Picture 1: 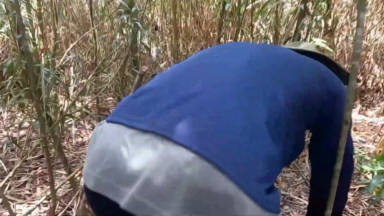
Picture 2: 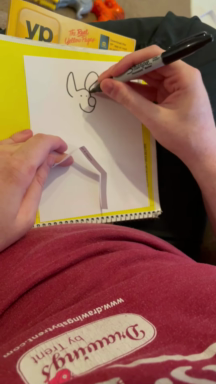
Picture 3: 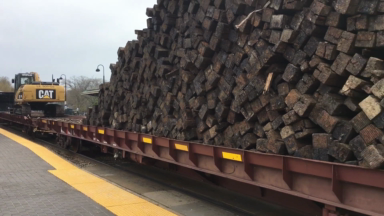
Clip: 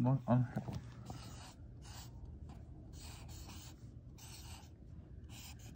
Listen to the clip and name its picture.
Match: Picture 2